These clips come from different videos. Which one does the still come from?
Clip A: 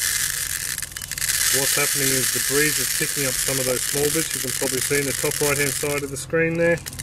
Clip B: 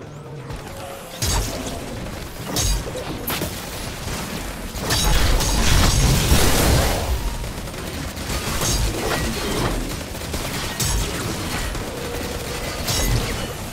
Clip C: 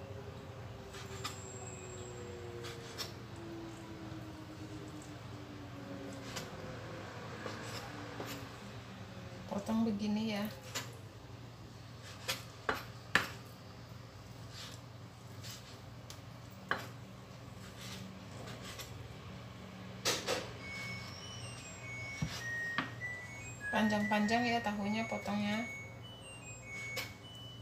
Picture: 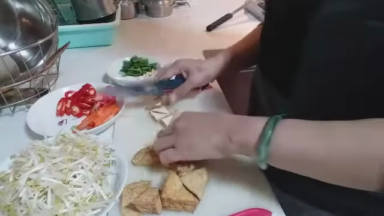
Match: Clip C